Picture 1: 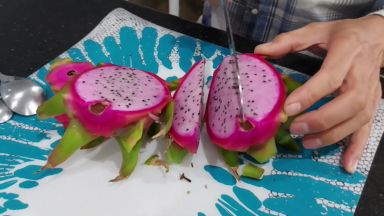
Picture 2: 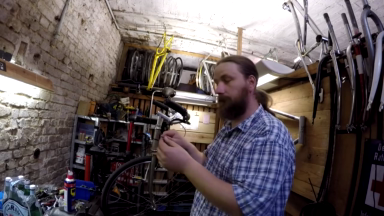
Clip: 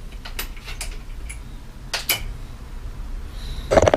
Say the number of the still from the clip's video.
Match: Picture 2